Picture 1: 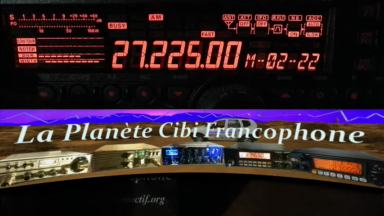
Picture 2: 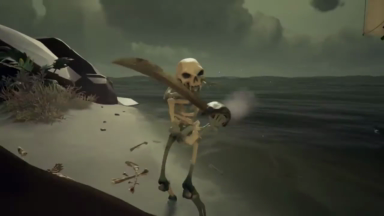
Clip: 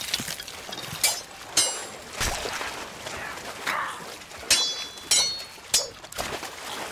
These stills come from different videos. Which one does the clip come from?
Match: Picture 2